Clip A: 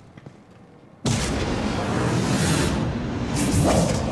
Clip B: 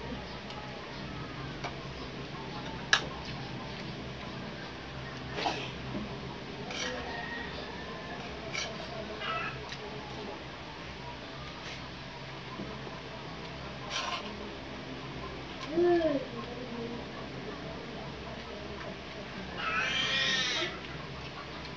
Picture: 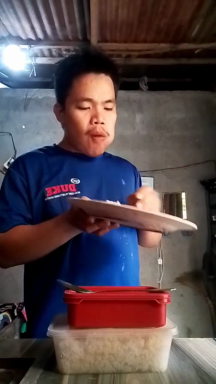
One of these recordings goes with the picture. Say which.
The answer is B